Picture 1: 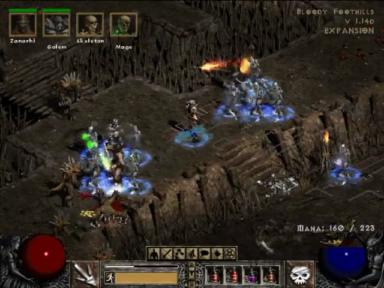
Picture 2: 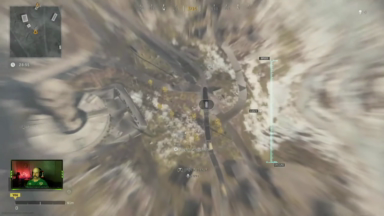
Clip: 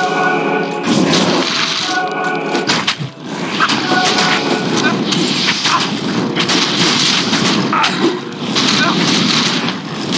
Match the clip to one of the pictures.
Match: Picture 1